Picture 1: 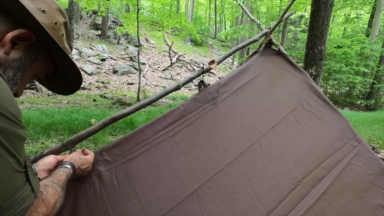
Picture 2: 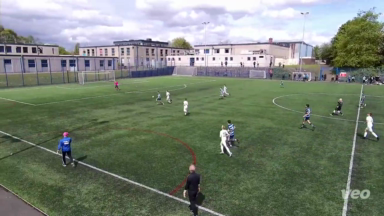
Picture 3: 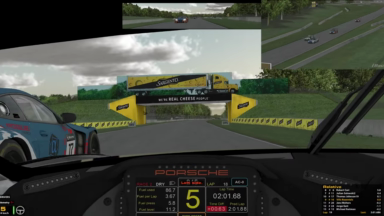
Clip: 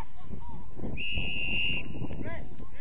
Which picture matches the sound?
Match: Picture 2